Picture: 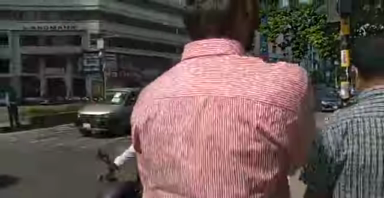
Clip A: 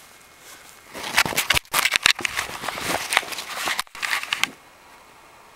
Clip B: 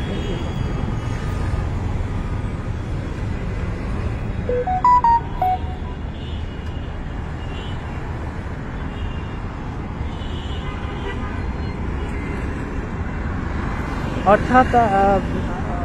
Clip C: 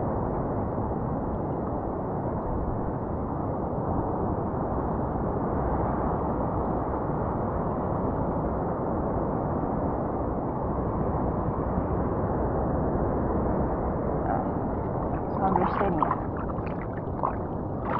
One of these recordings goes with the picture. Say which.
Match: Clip B